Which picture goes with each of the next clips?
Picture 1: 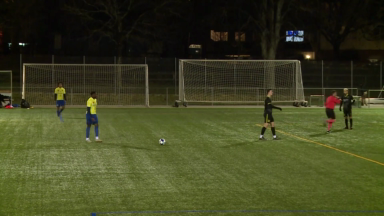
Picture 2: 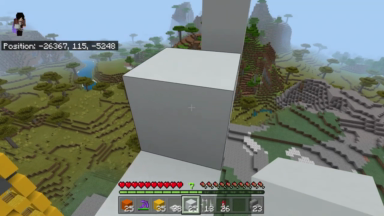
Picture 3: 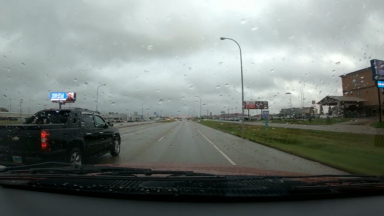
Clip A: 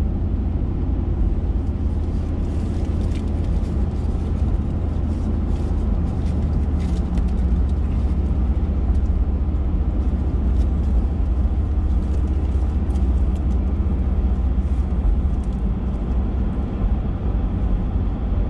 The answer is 3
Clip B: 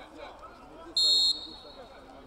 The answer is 1